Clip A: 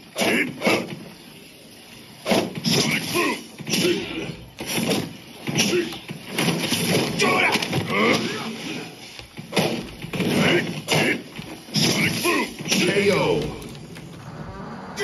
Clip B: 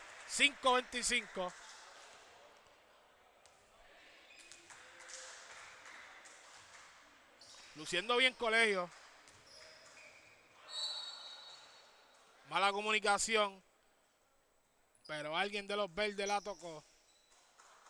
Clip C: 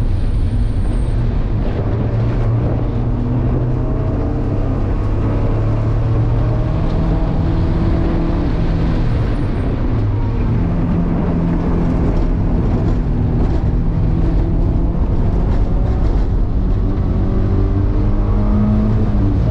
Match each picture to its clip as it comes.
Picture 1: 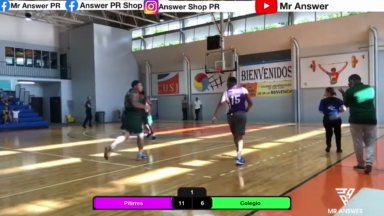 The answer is B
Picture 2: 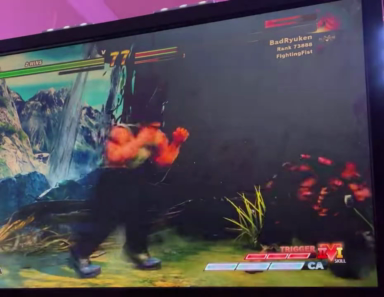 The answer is A